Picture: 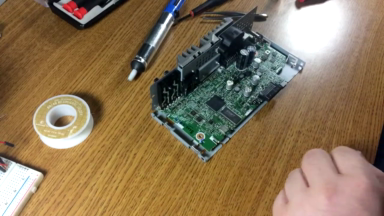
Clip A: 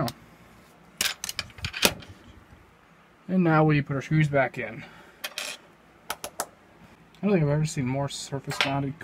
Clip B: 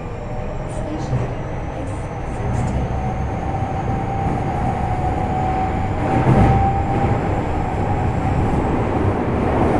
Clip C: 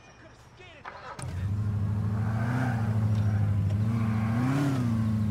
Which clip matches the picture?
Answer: A